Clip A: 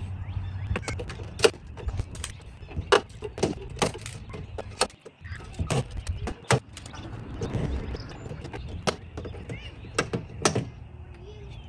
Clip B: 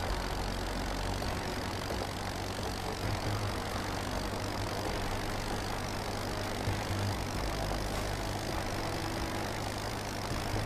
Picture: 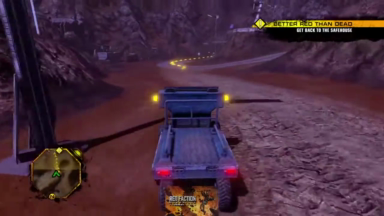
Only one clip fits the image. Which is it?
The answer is B